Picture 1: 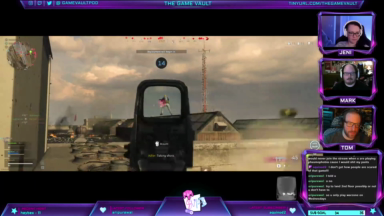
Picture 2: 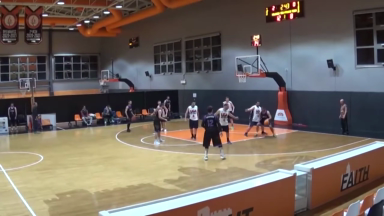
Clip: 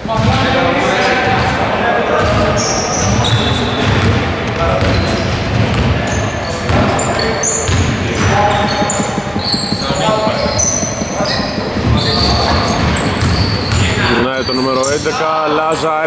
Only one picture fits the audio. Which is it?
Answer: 2